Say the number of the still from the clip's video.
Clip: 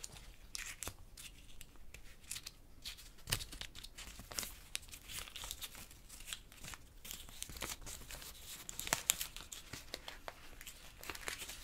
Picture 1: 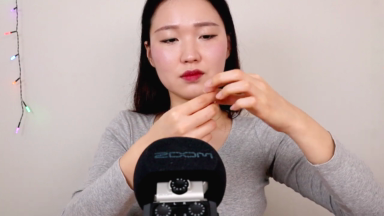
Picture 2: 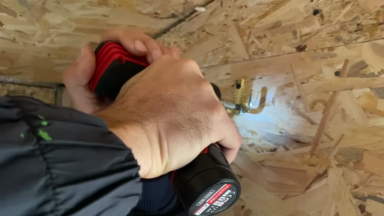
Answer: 1